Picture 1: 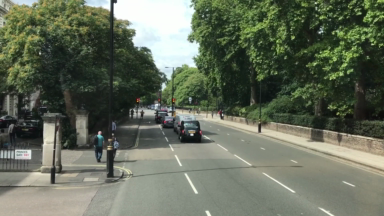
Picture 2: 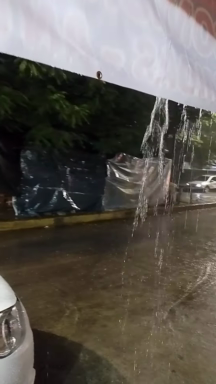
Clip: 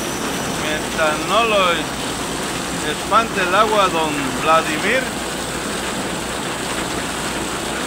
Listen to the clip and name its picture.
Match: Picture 2